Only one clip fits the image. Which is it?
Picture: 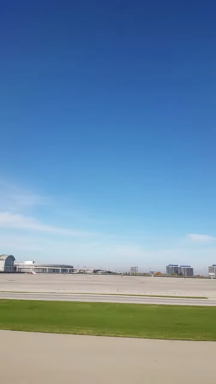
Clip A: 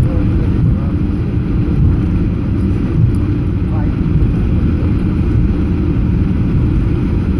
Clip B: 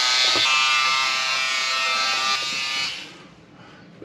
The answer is A